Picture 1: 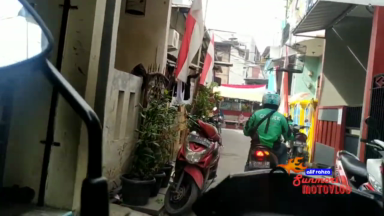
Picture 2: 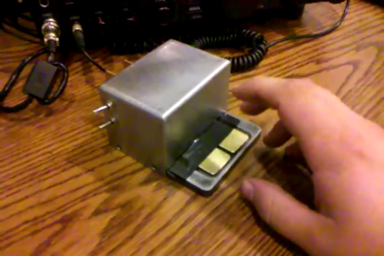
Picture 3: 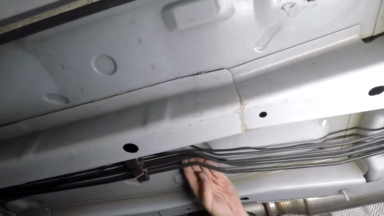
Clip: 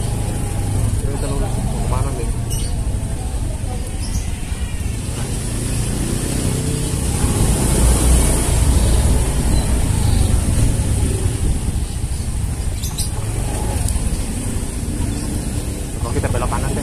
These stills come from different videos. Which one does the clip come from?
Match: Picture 1